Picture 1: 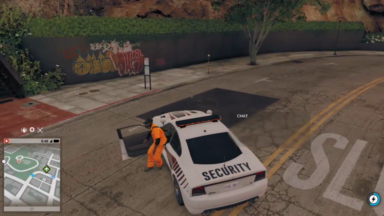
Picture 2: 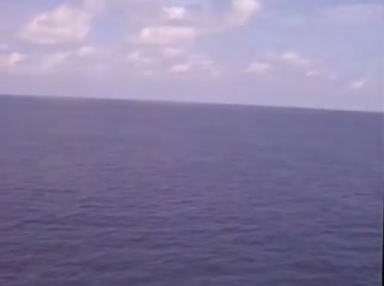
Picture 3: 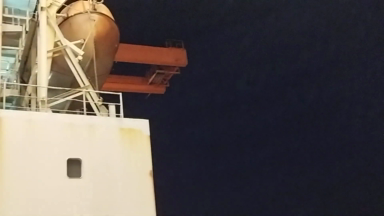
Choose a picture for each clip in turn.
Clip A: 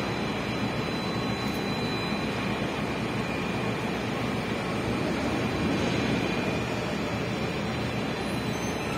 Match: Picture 3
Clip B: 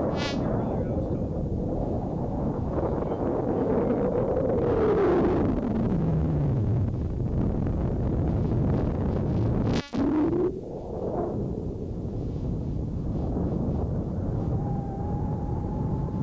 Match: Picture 2